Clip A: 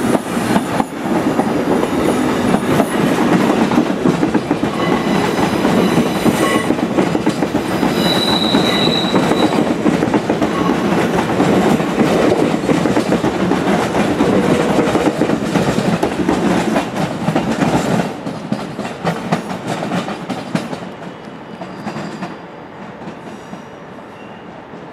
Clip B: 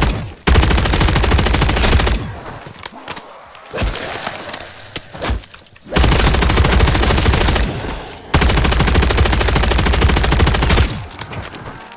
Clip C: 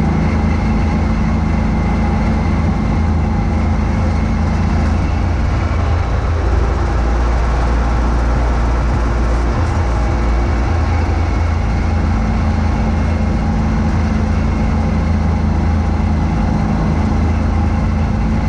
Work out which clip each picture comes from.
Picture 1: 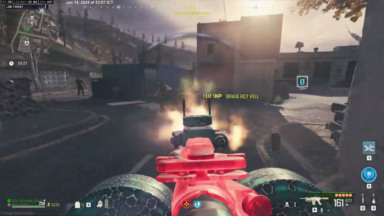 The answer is B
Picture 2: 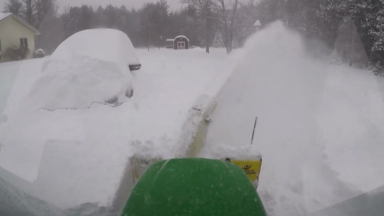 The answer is C